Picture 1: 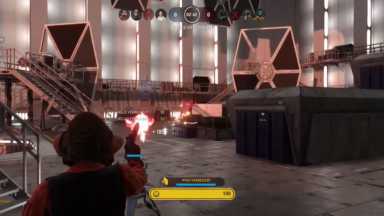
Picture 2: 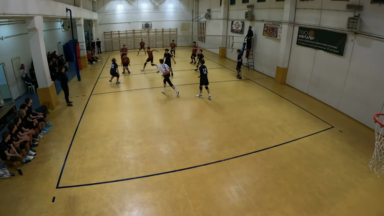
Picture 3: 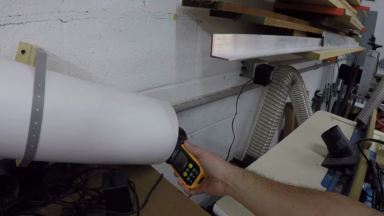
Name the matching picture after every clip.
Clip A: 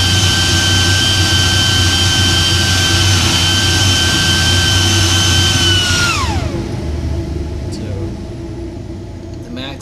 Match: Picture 3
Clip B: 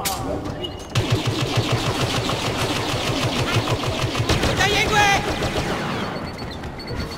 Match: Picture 1